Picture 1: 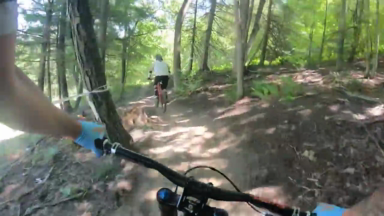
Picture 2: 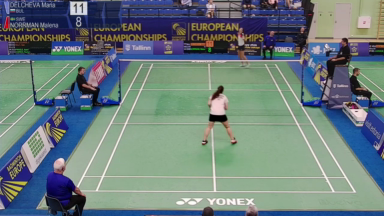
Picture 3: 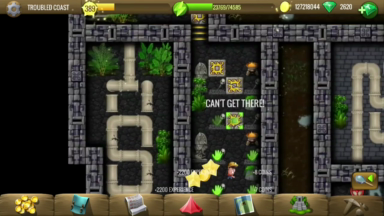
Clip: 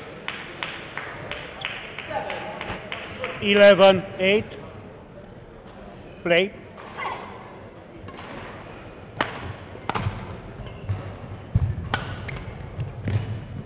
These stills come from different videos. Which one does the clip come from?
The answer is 2